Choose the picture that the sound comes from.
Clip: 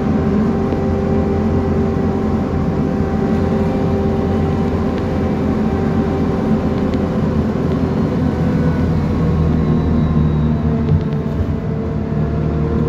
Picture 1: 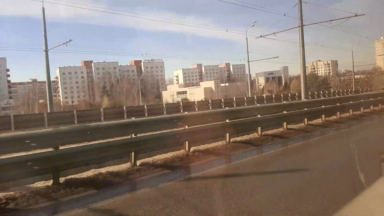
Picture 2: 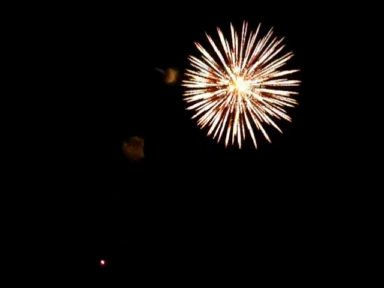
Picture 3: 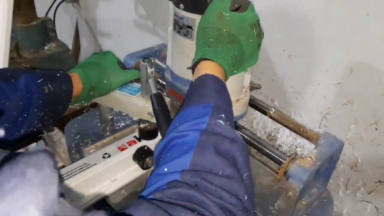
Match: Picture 1